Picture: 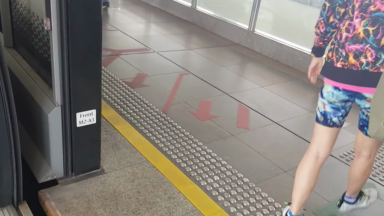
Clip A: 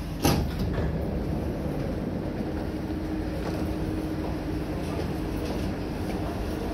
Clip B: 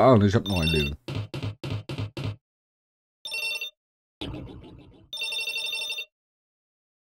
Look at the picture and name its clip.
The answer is A